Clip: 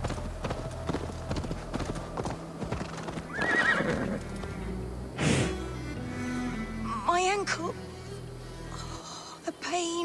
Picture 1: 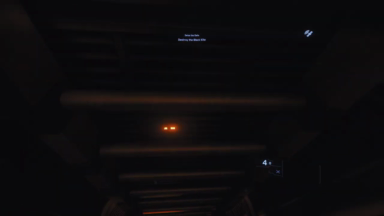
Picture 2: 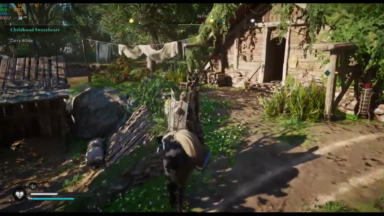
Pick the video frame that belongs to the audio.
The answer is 2